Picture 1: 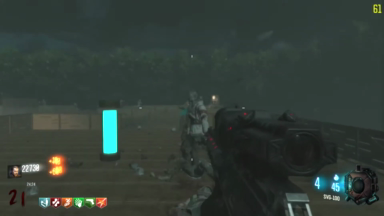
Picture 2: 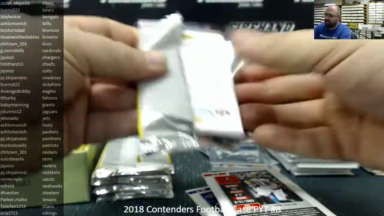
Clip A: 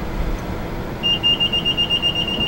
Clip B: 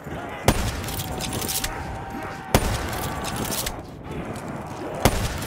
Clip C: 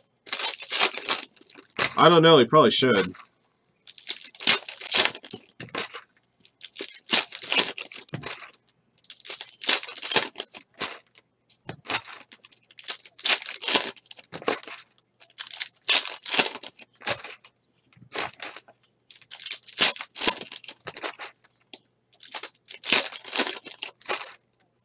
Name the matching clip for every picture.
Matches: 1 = B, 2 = C